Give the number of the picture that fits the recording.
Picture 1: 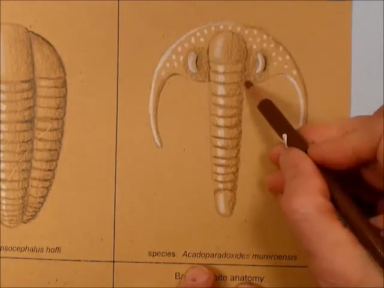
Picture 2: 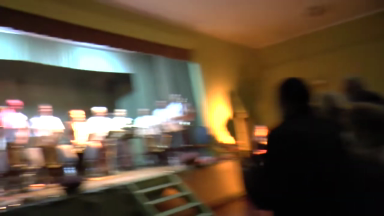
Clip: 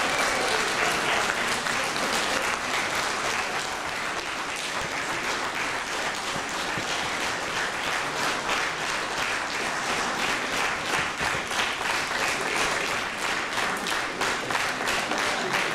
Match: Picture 2